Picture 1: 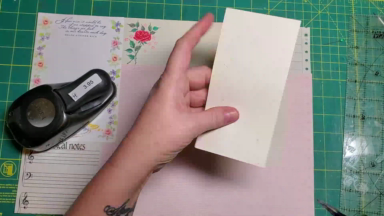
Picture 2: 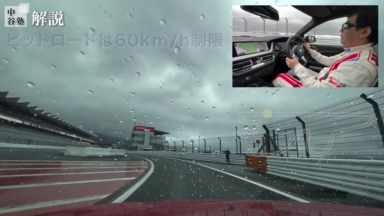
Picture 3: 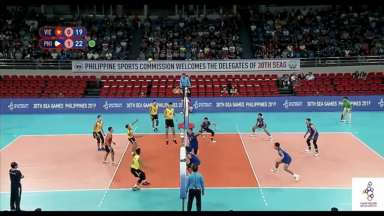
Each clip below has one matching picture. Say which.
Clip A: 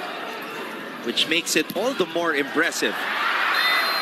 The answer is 3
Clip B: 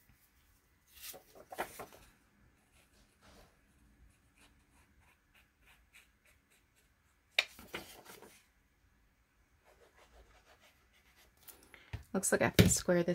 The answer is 1